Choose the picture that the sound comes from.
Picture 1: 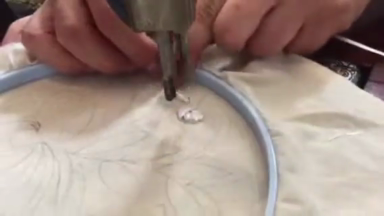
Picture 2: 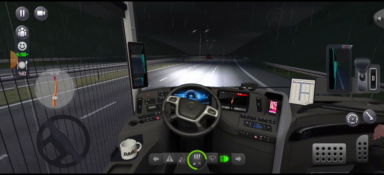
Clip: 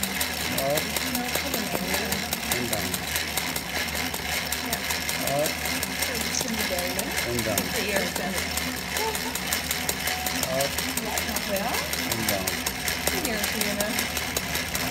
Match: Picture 1